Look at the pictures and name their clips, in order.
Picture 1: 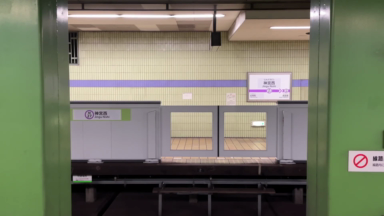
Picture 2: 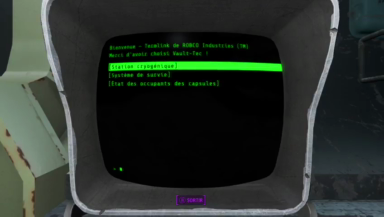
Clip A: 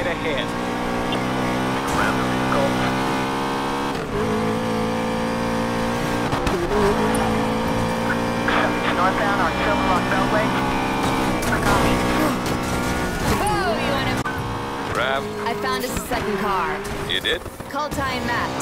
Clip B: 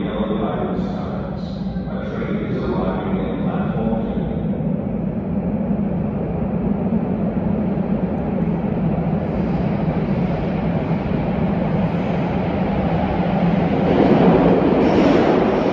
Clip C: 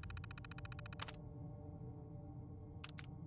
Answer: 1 B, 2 C